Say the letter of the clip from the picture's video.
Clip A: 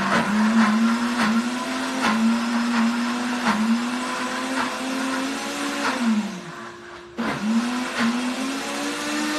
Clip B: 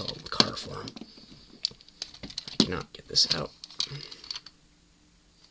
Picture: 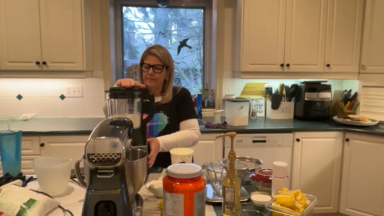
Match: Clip A